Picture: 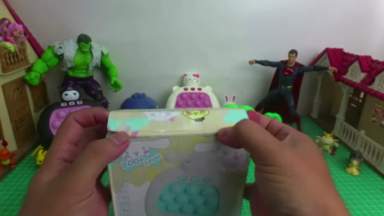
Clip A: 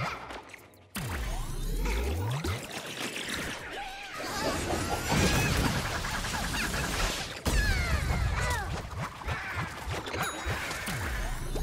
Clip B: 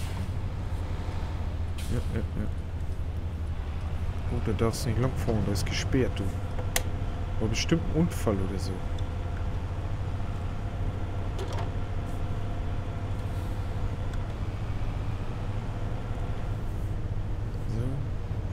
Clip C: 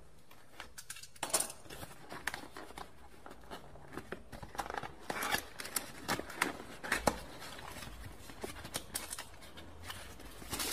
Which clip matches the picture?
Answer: C